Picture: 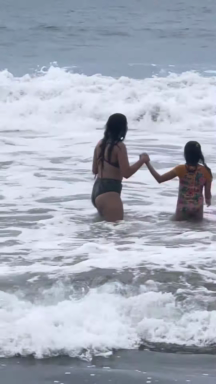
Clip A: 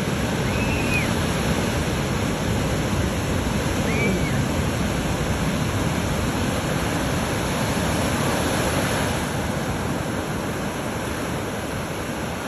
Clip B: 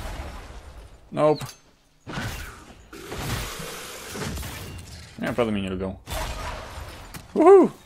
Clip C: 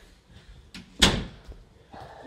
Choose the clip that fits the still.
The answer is A